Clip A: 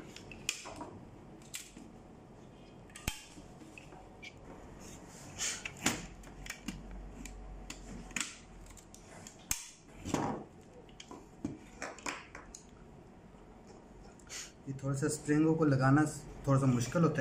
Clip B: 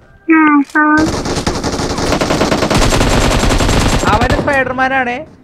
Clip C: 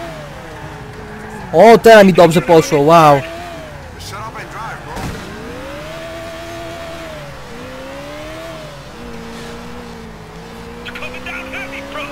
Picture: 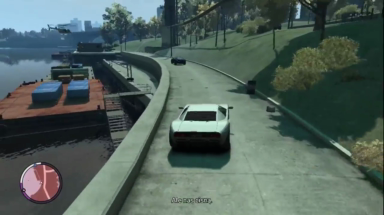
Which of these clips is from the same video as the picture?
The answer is C